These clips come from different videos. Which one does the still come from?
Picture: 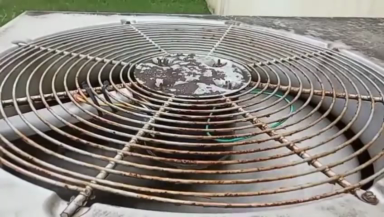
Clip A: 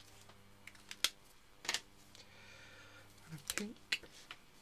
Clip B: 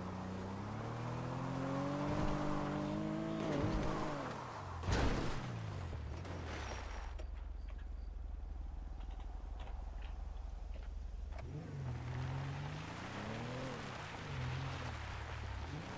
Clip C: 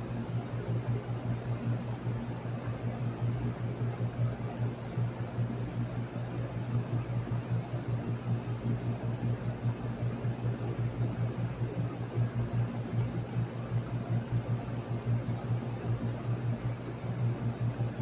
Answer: C